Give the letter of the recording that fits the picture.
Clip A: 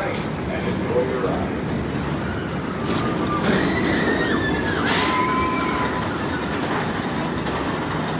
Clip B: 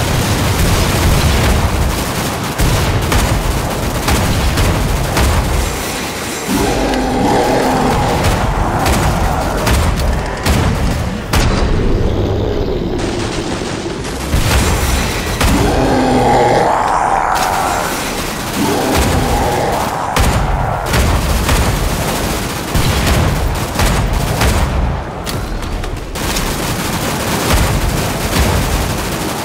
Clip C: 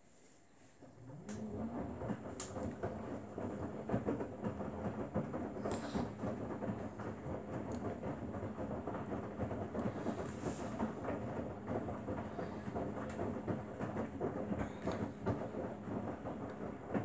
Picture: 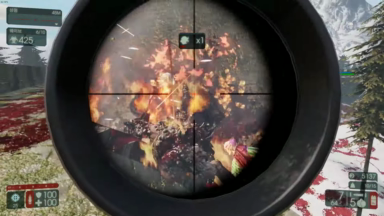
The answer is B